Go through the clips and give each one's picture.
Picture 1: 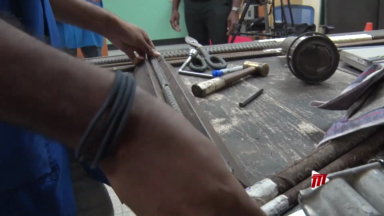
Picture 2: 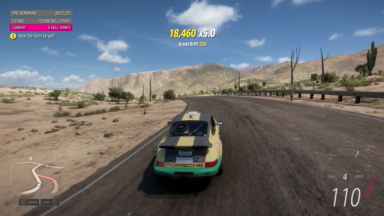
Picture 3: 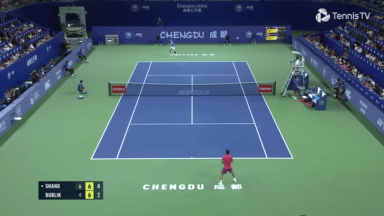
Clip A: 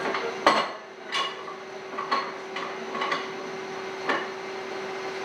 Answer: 1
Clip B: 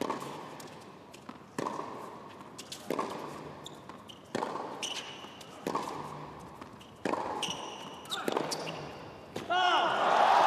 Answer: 3